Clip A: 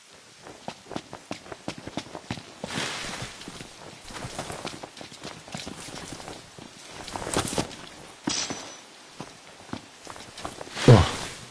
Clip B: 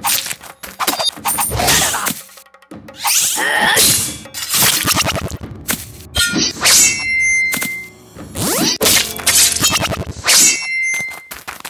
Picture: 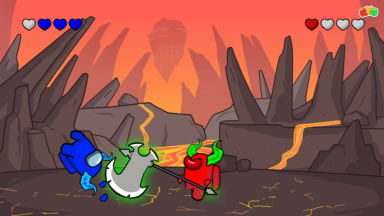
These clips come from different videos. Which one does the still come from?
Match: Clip B